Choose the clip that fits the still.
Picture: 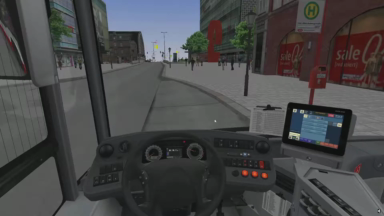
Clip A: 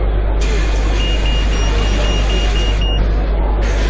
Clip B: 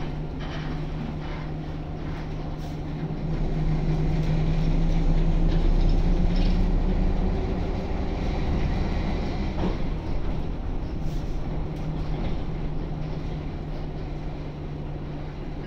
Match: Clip A